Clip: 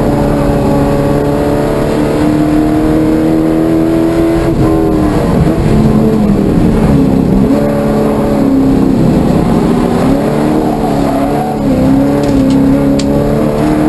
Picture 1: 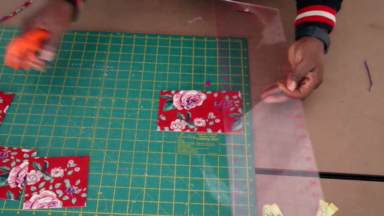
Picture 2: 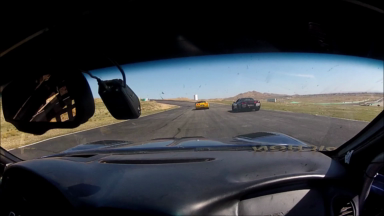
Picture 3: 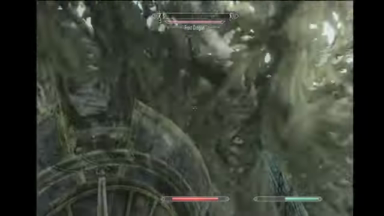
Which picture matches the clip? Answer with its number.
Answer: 2